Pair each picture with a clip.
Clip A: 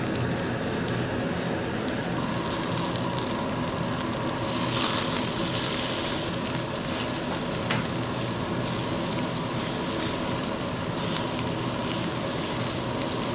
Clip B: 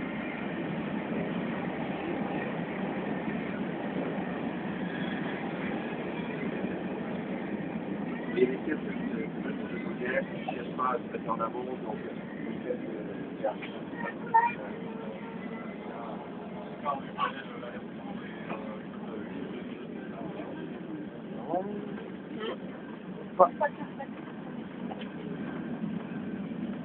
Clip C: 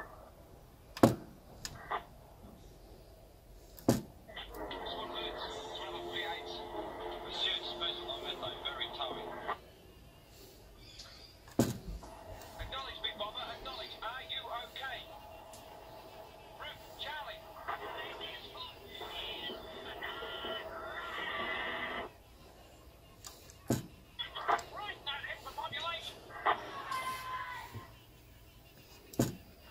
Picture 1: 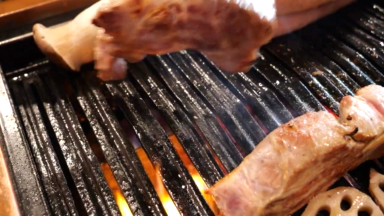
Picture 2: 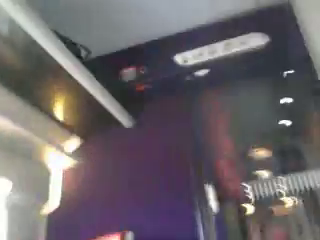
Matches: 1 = A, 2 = B